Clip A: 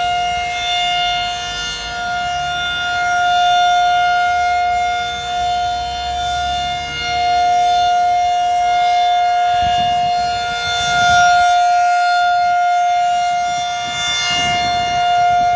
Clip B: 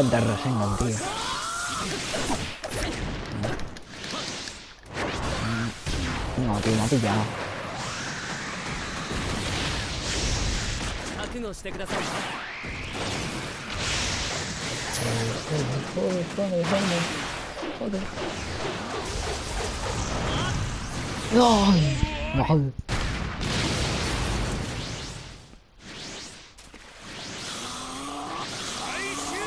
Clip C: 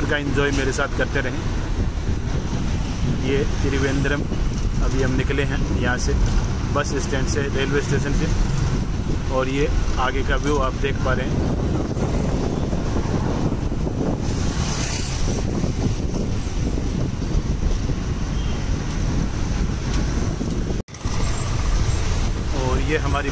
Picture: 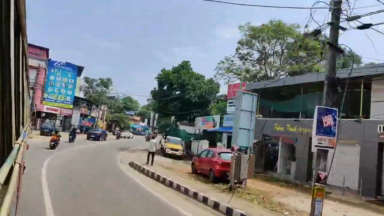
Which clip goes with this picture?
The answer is C